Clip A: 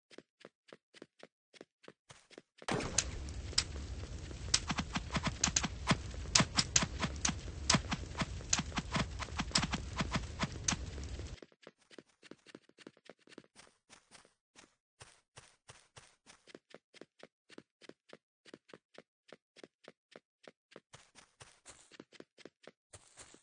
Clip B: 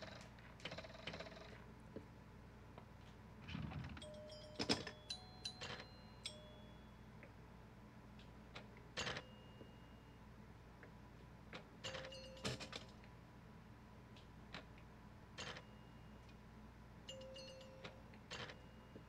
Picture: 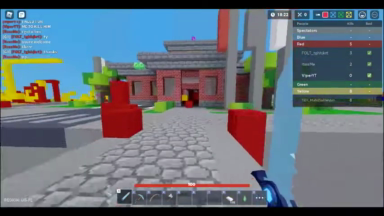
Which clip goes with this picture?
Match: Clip A